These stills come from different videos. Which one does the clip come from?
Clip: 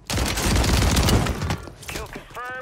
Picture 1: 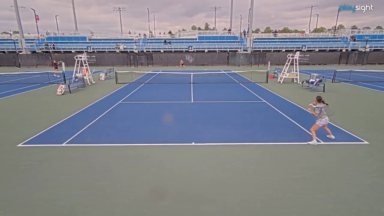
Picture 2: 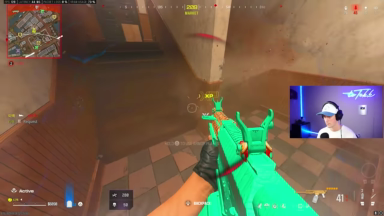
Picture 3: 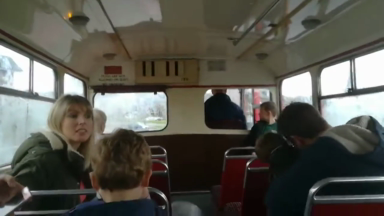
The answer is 2